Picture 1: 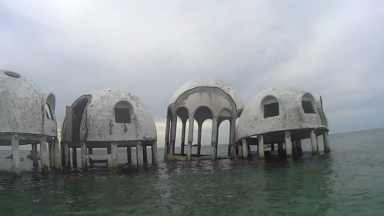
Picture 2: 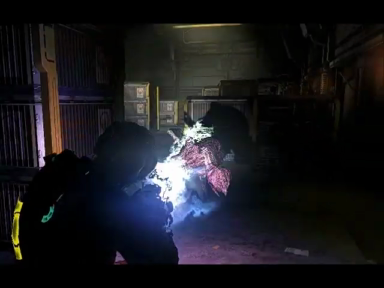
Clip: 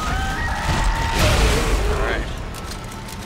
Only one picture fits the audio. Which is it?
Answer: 2